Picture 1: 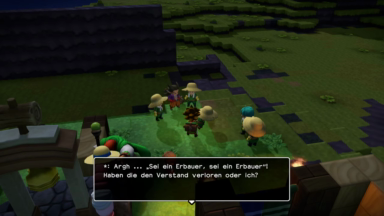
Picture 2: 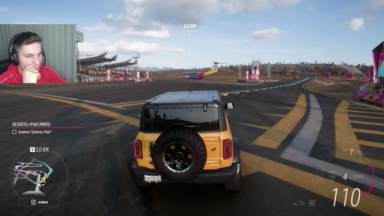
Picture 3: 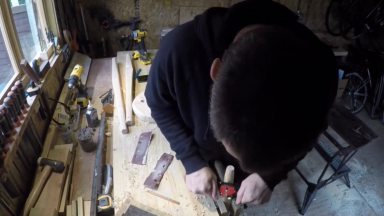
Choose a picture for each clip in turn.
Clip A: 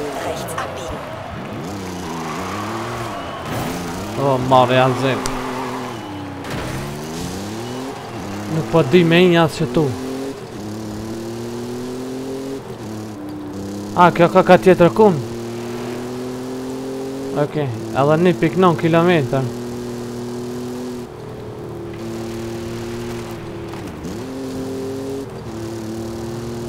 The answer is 2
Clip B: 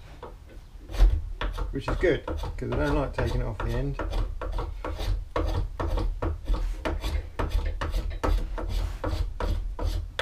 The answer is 3